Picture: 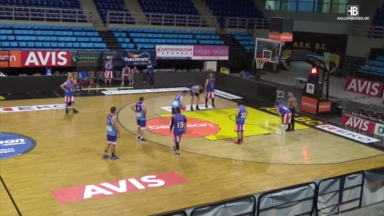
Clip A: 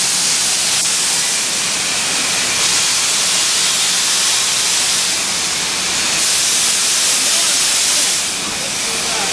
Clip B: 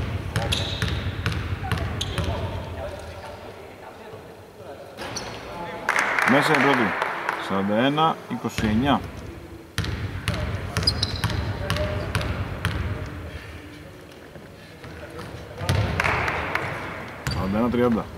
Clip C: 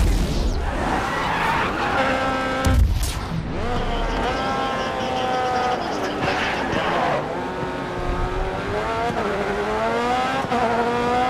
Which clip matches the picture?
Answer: B